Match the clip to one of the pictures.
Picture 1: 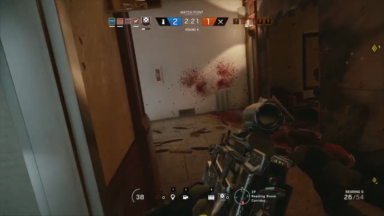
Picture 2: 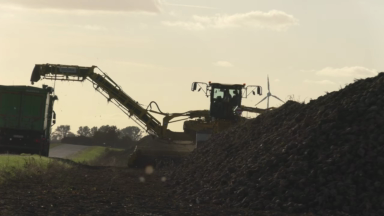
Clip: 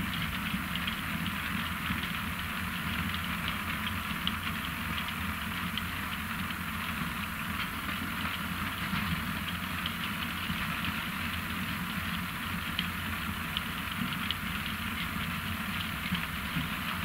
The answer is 2